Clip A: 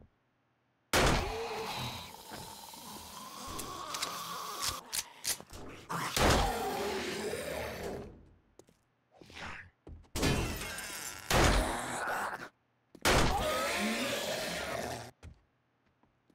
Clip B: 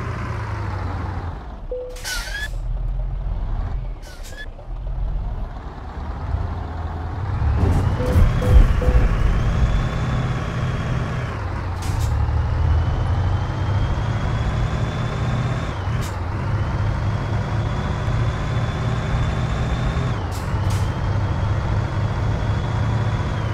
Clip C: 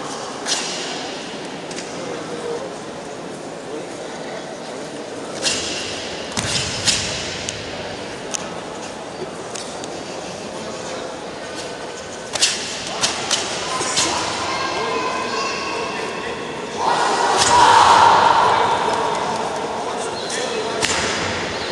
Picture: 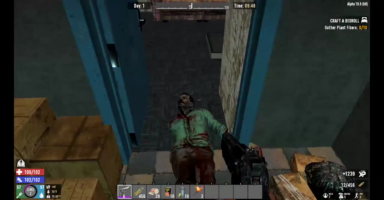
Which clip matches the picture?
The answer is A